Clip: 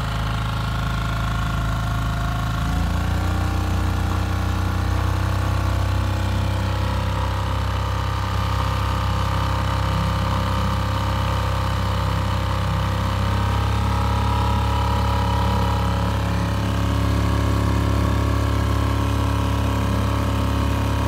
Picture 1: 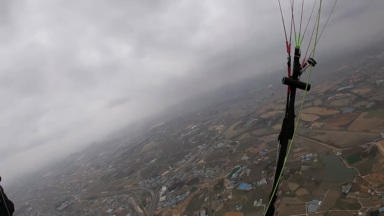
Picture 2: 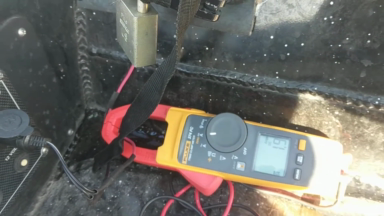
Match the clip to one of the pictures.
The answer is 2